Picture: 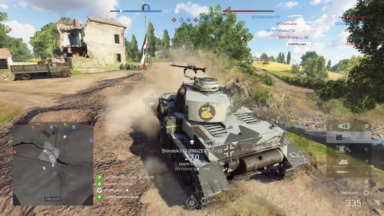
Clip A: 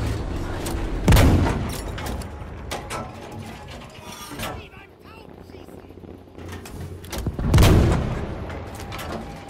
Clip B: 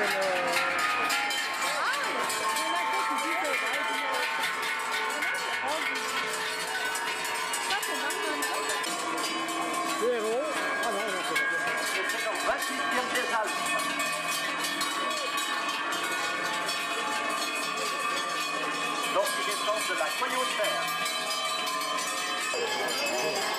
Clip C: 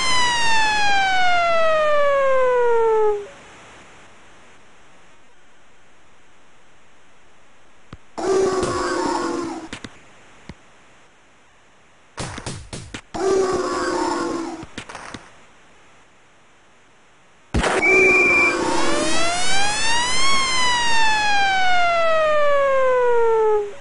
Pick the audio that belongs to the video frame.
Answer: A